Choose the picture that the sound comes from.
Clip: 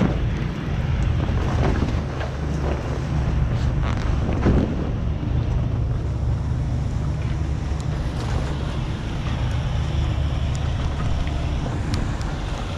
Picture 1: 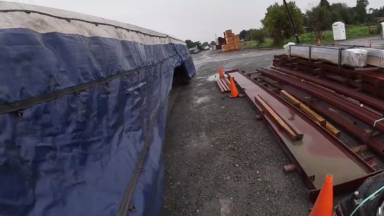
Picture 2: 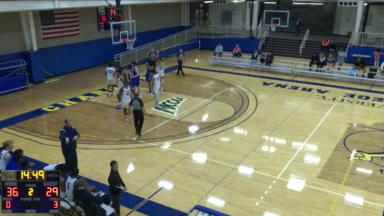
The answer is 1